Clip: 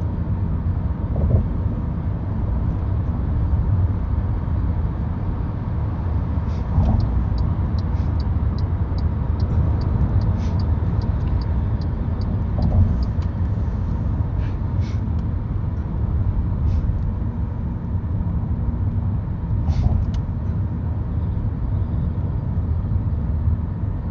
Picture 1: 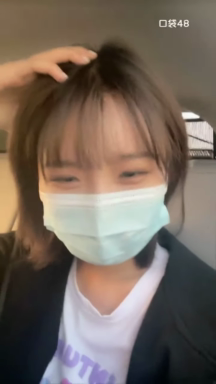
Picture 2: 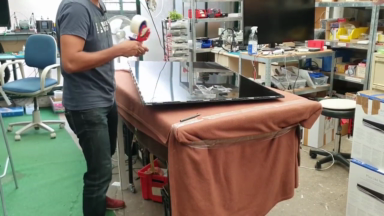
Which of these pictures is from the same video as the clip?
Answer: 1